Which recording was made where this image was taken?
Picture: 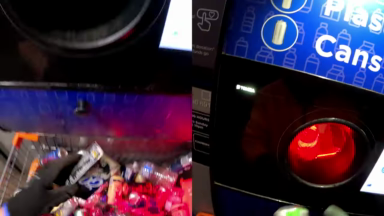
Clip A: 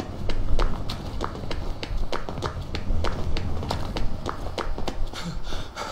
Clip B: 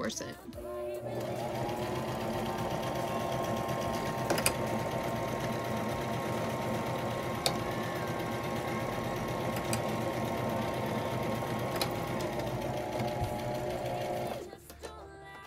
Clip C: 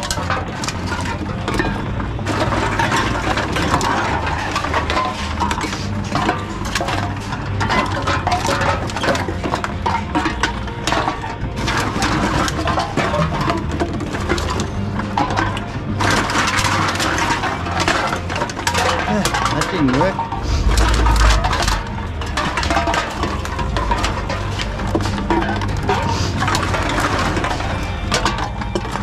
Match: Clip C